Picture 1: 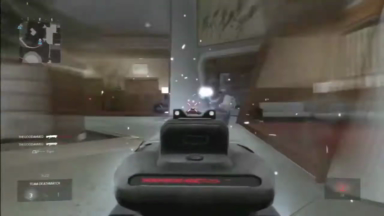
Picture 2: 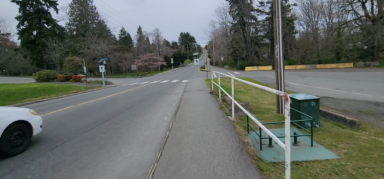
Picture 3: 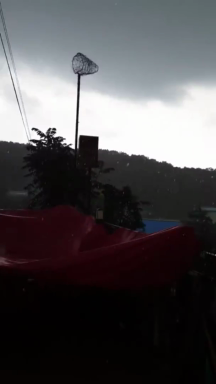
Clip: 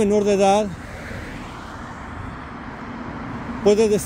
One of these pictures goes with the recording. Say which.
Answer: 2